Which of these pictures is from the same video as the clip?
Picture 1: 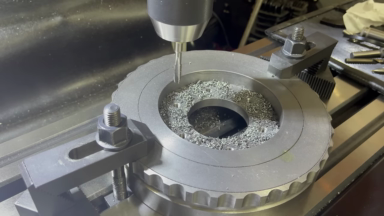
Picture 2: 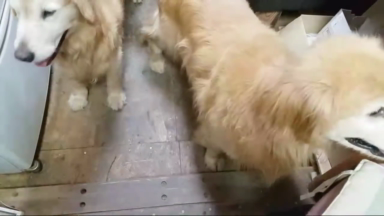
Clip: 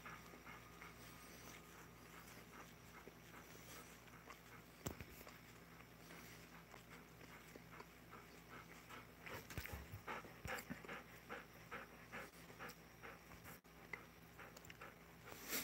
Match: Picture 2